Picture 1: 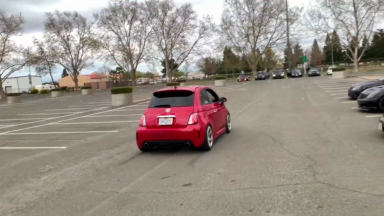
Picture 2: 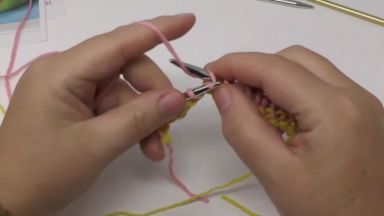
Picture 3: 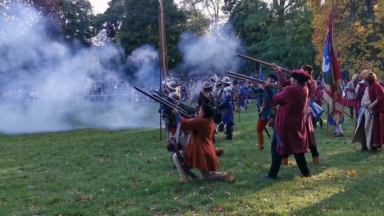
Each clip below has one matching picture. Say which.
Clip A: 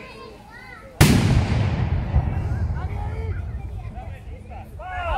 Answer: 3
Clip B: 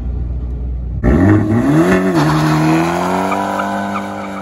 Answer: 1